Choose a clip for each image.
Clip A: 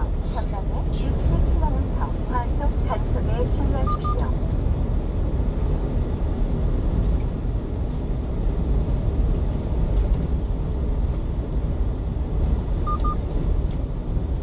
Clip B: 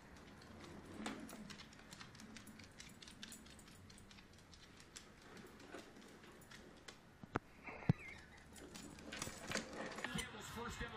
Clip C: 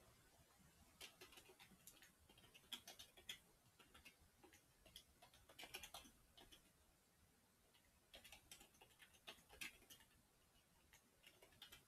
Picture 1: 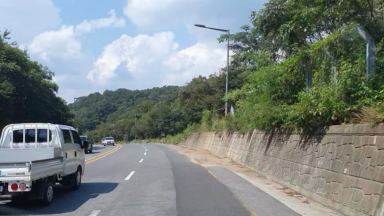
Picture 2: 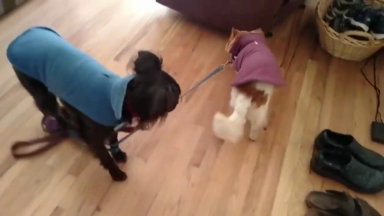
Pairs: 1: A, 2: B